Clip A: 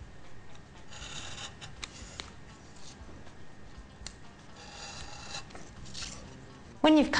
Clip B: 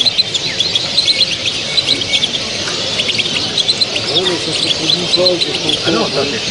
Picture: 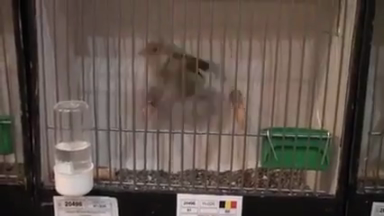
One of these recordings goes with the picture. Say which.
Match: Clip B